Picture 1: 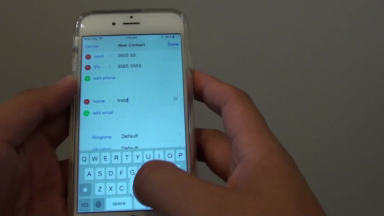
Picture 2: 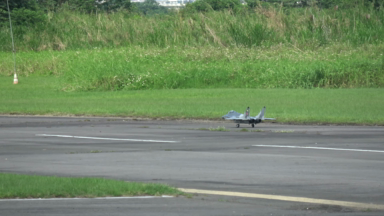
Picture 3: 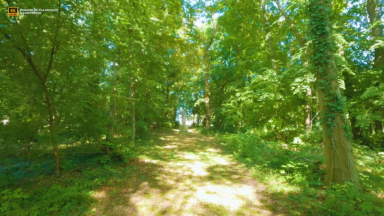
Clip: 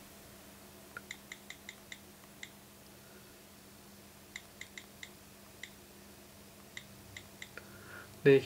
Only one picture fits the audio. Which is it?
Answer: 1